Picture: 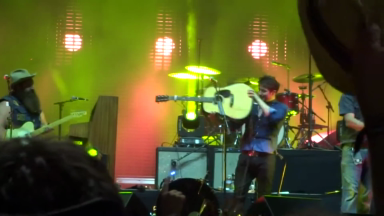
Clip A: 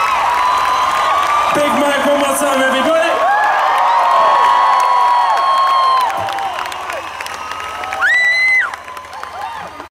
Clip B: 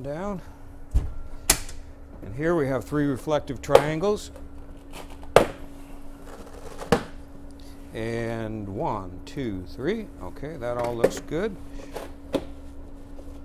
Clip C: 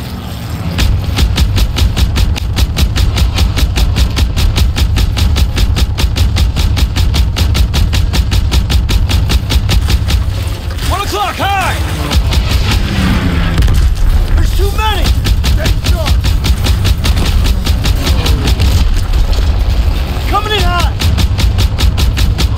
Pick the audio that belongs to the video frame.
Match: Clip A